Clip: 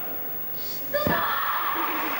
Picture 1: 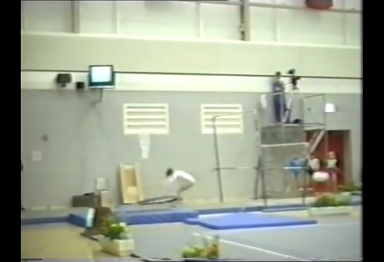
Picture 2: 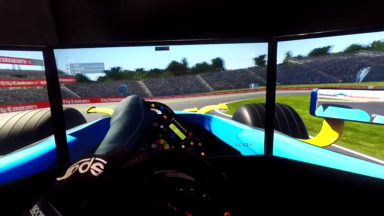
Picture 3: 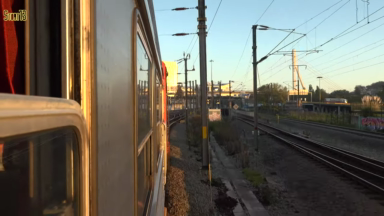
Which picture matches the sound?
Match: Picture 1